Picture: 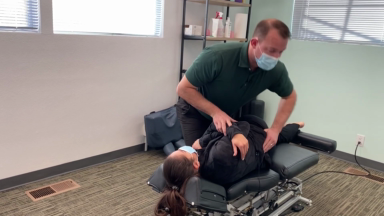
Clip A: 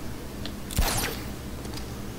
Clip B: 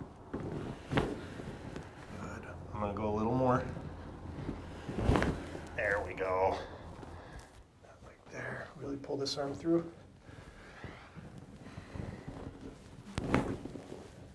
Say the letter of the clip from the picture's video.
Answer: B